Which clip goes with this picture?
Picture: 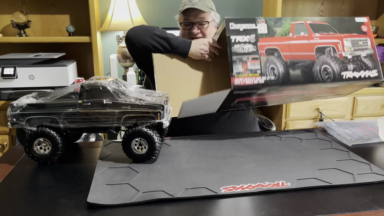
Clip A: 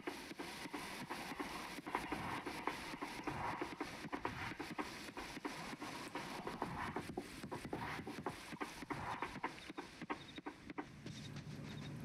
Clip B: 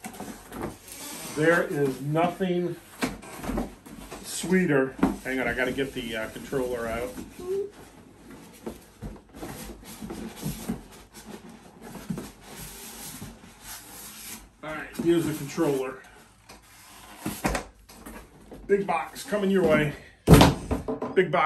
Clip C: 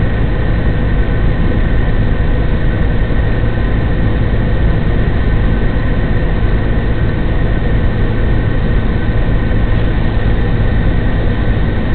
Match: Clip B